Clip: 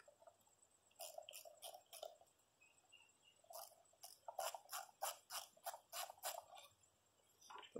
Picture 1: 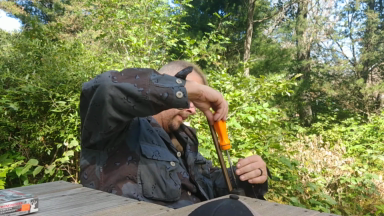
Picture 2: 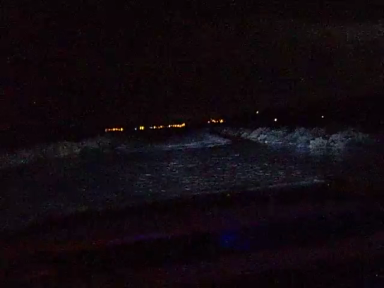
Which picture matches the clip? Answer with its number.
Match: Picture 1